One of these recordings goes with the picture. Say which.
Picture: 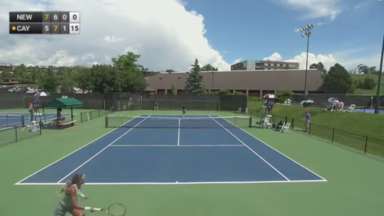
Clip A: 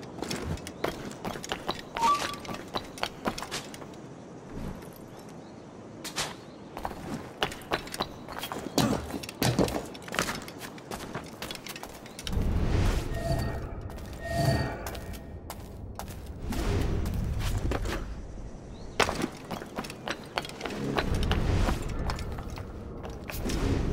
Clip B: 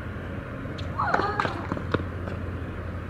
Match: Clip B